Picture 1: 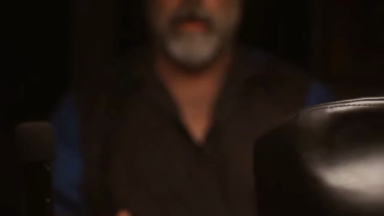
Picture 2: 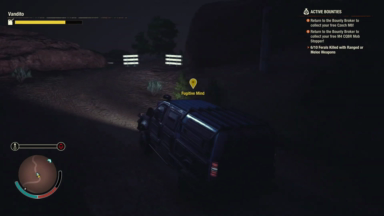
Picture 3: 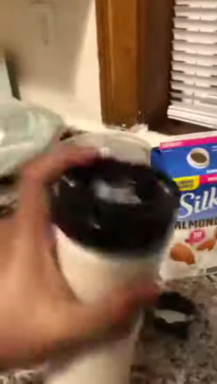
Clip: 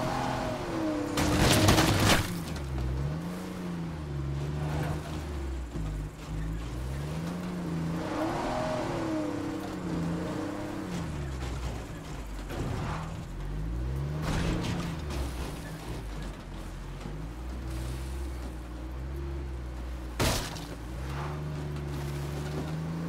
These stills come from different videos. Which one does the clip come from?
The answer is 2